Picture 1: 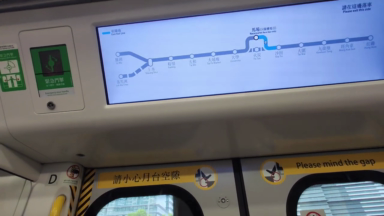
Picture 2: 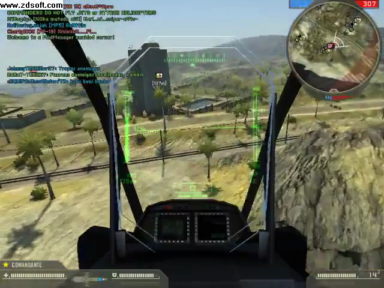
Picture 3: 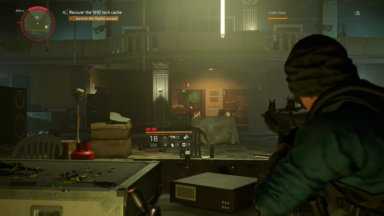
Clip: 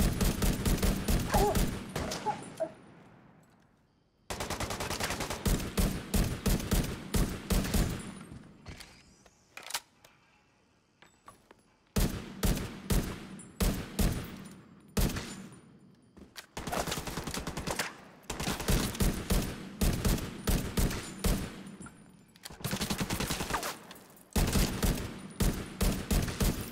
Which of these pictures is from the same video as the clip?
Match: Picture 3